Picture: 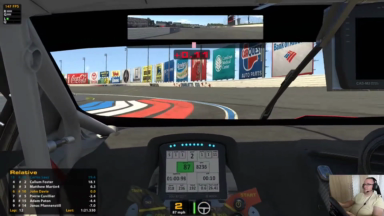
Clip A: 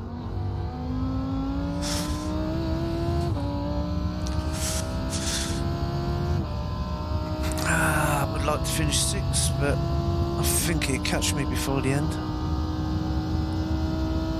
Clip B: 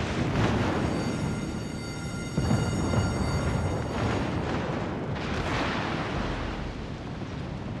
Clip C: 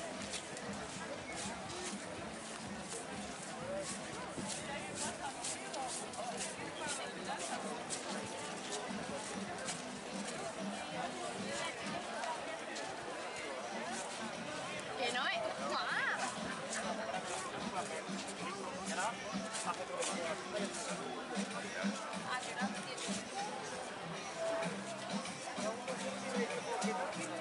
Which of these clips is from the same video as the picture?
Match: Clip A